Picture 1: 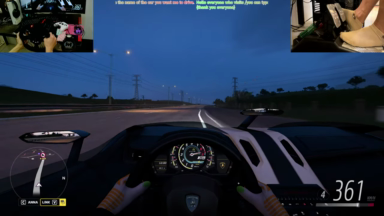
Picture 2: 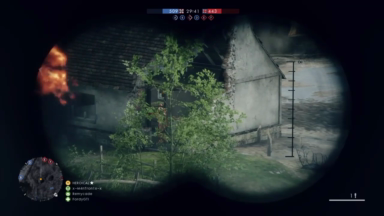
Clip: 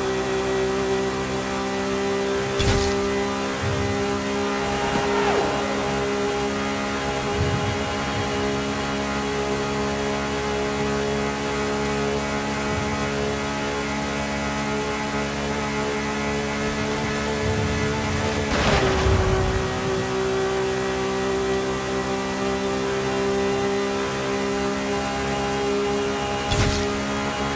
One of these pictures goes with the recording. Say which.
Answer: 1